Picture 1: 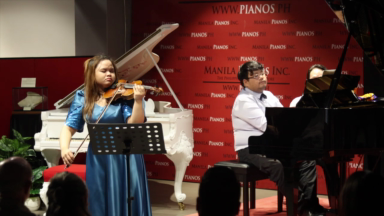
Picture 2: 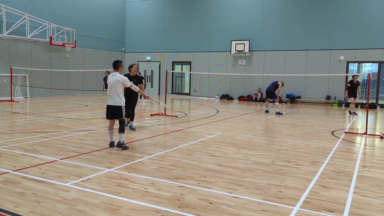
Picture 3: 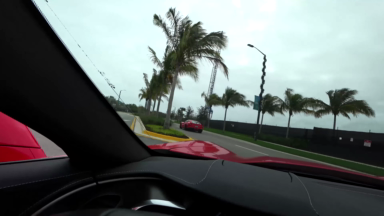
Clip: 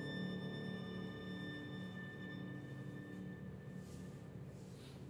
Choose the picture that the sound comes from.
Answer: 1